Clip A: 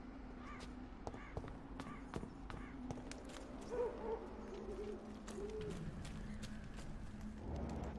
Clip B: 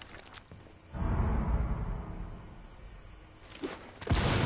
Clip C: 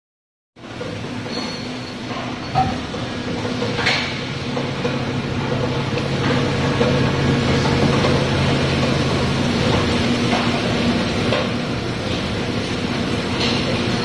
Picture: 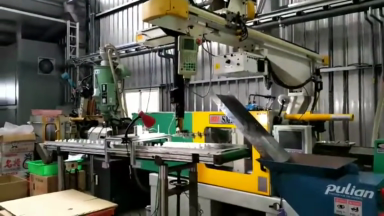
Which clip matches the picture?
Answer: C